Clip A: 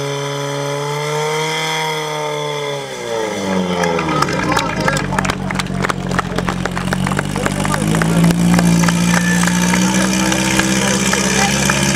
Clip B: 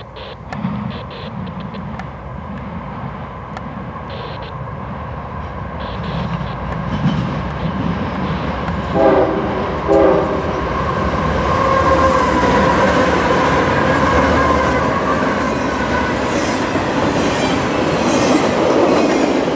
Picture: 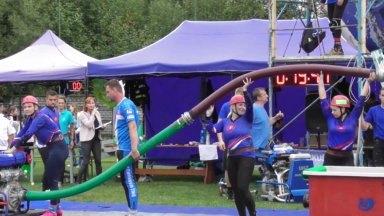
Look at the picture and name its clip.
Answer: A